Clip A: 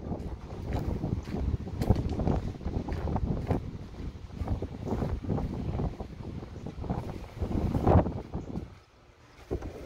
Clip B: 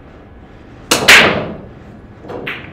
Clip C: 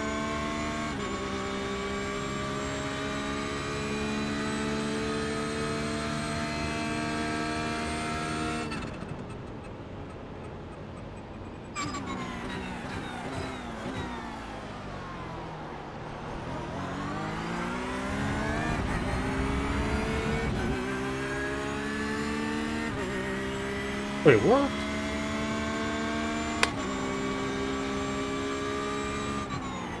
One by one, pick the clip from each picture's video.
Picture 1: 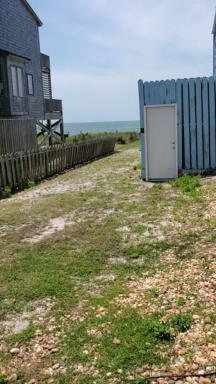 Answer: A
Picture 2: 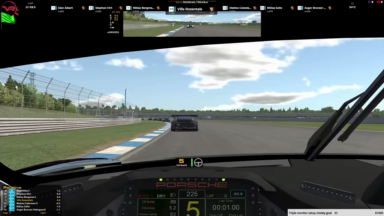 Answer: C